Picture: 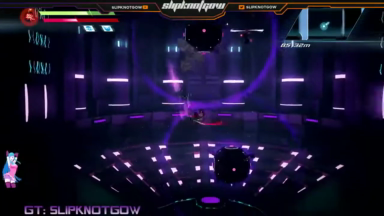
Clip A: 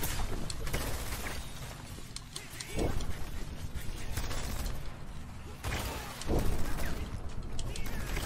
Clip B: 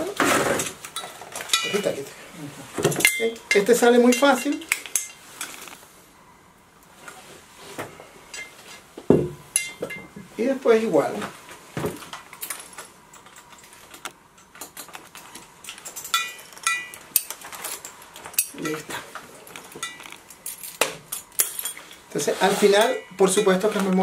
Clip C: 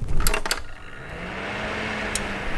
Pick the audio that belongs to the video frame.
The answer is A